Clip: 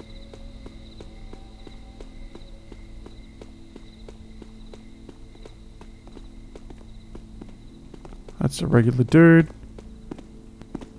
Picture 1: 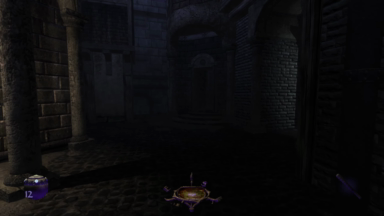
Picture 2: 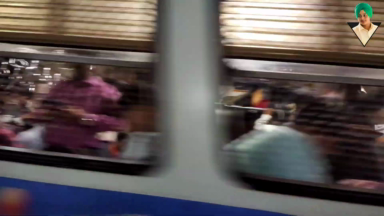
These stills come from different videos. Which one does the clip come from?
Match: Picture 1